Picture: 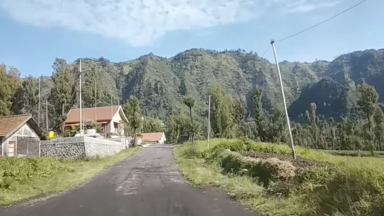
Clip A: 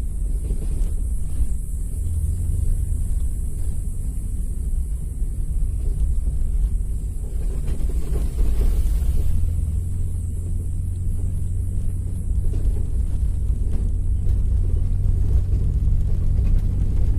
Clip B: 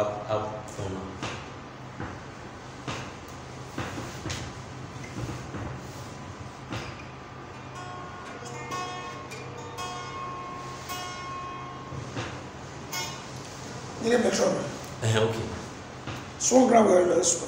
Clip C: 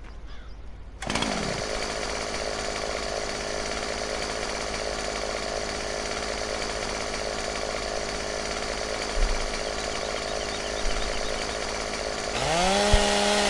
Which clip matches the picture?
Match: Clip A